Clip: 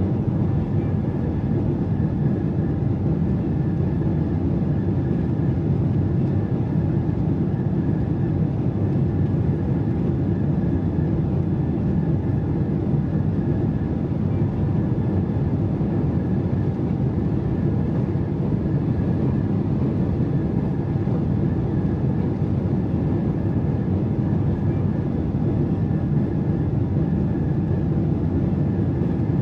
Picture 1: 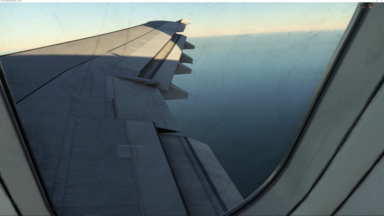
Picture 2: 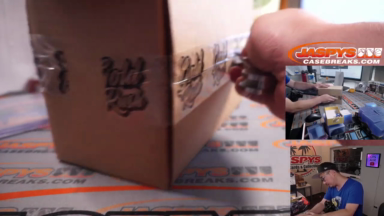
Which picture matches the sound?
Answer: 1